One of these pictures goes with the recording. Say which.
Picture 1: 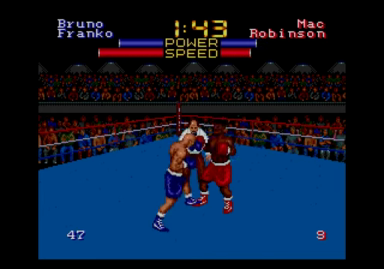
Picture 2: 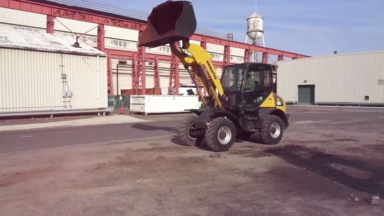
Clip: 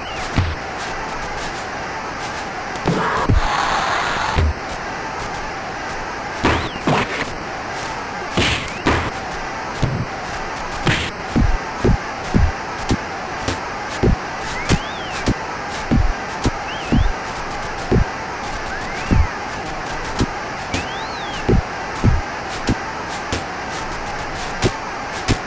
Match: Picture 1